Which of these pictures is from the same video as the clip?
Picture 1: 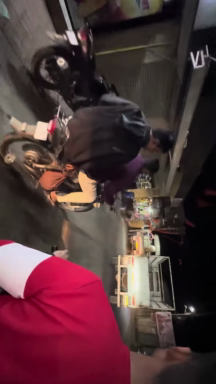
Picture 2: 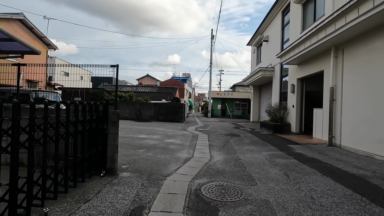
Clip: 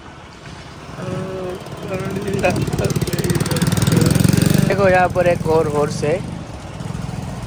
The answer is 1